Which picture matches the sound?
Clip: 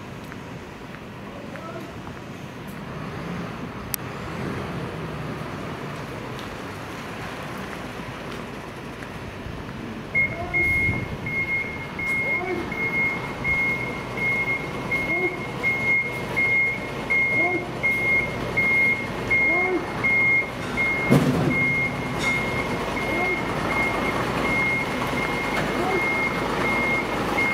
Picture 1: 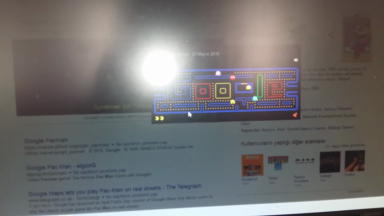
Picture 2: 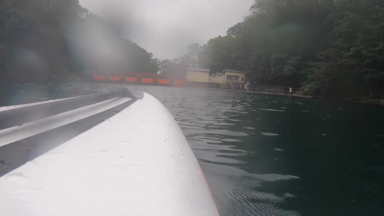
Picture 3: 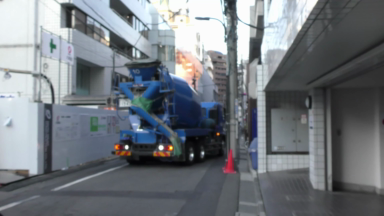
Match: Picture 3